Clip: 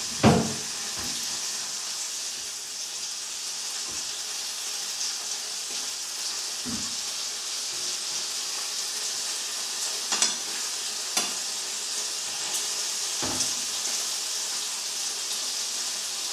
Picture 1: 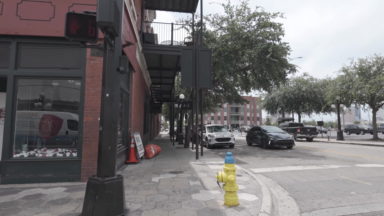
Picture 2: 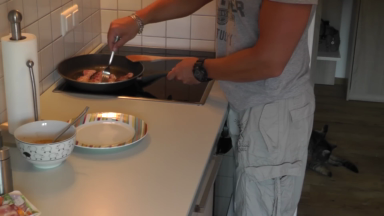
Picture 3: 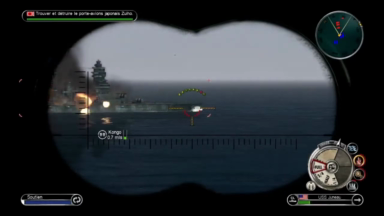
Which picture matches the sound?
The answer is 2